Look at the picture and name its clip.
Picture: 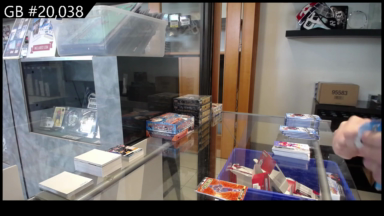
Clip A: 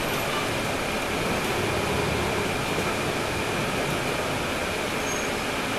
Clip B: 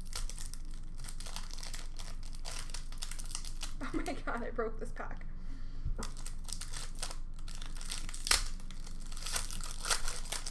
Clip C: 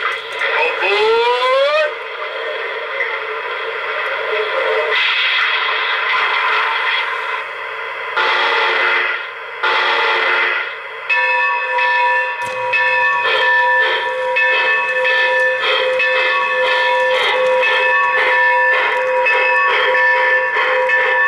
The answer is B